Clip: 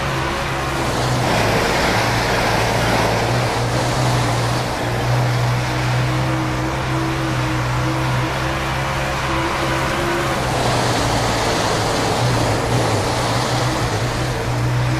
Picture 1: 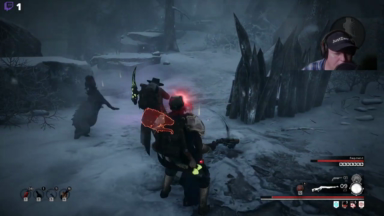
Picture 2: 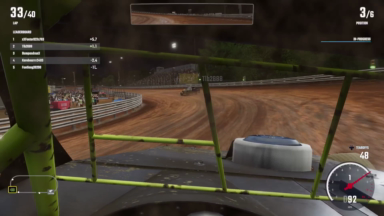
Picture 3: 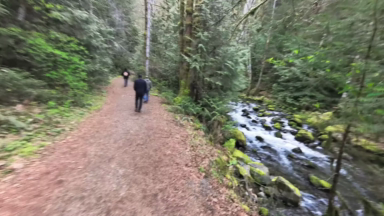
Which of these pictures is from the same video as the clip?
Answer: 2